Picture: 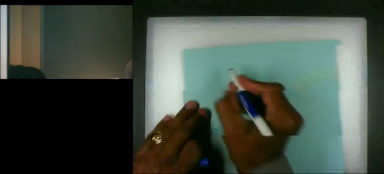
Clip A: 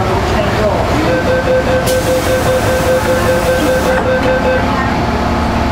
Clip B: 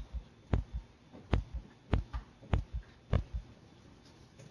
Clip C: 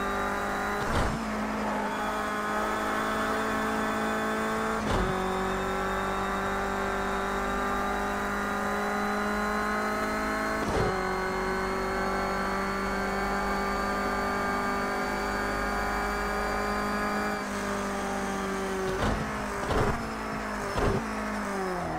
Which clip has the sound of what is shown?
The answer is B